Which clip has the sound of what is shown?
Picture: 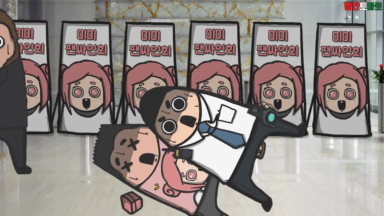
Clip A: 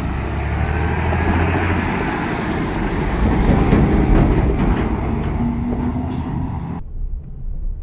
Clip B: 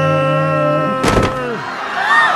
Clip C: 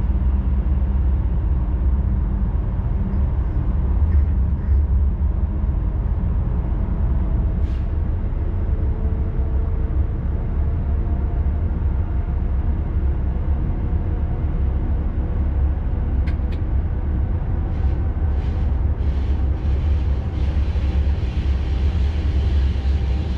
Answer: B